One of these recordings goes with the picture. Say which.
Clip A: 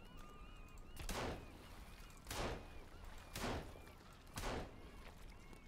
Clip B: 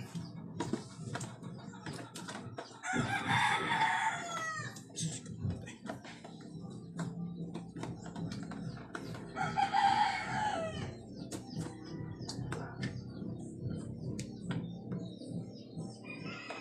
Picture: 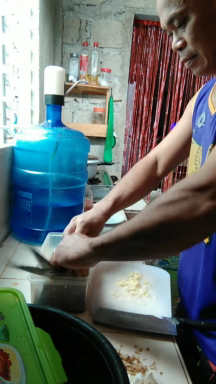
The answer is B